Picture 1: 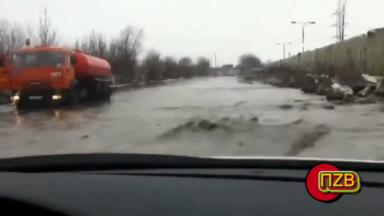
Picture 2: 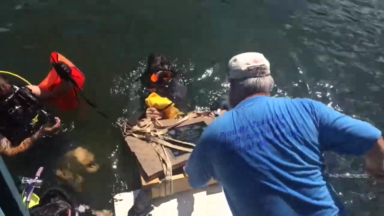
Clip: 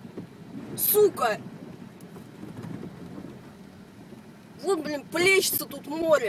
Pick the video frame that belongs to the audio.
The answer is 1